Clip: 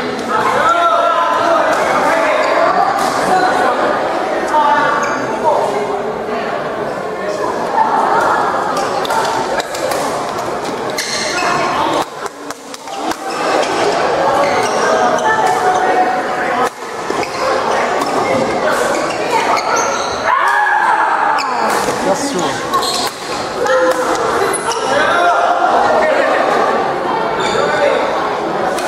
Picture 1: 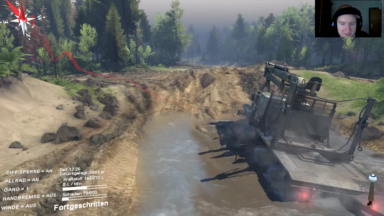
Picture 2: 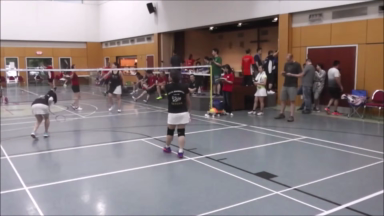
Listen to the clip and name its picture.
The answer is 2